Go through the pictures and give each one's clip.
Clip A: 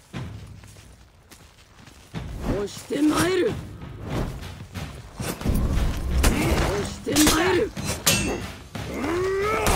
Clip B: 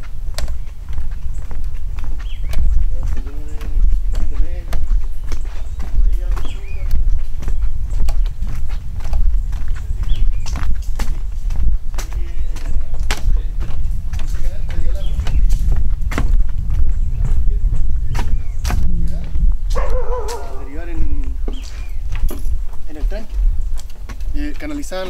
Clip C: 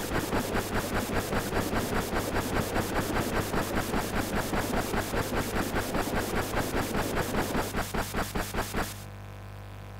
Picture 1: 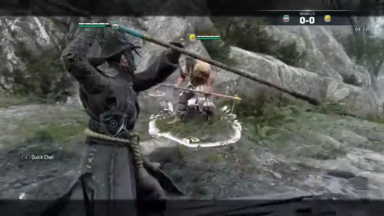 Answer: A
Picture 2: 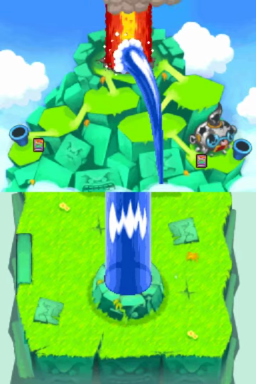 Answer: C